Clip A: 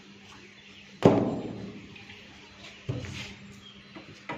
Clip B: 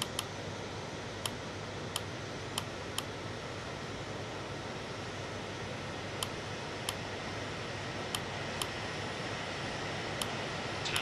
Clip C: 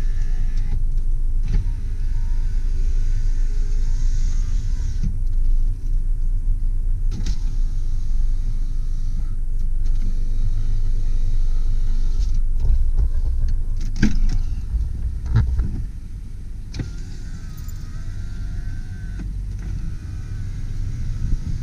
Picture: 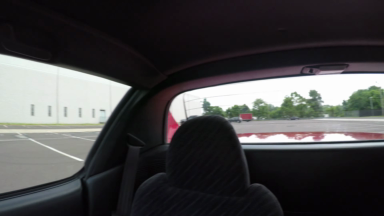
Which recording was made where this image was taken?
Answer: C